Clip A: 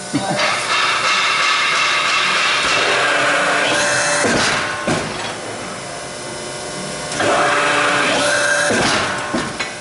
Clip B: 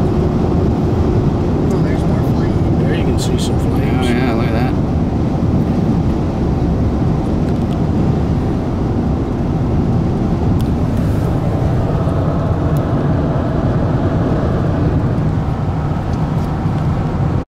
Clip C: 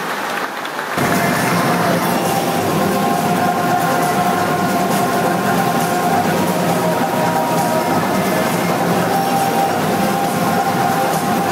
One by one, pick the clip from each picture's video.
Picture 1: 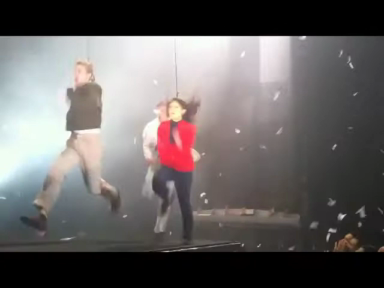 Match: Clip C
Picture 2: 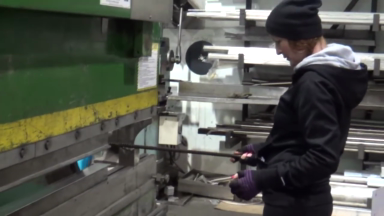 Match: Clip A